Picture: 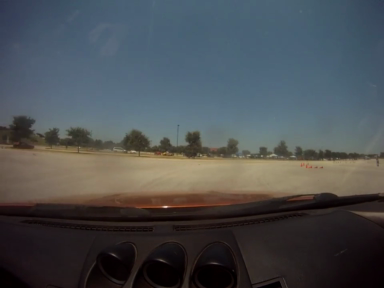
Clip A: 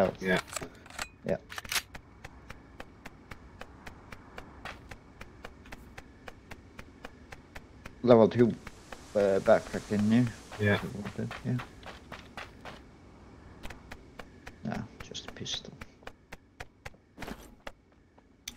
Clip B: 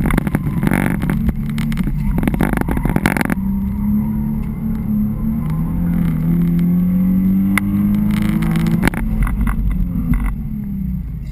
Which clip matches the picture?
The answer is B